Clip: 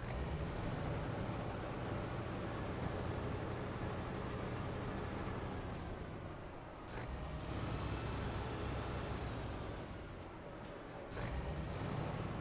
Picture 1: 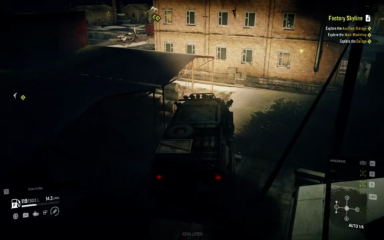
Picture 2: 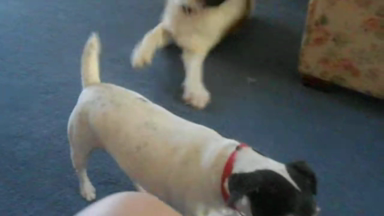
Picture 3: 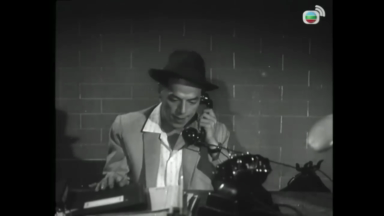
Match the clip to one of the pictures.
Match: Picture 1